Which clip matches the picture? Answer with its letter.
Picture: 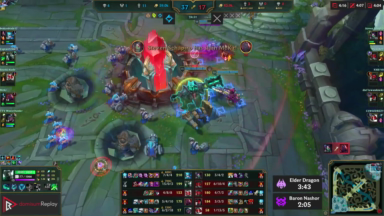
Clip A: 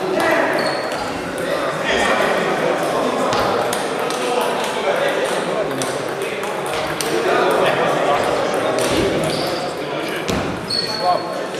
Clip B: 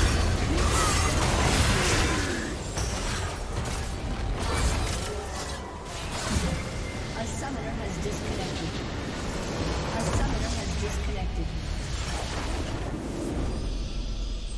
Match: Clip B